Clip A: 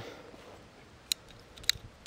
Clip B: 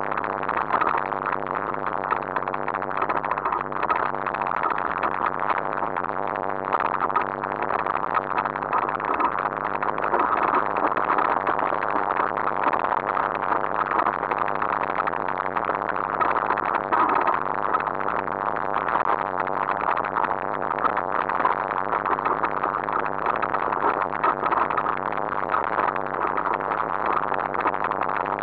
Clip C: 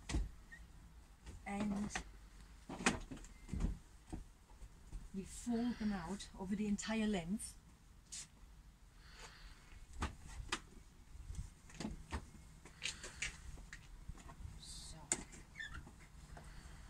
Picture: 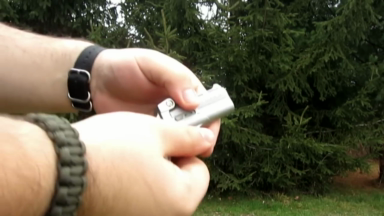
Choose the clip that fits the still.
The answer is A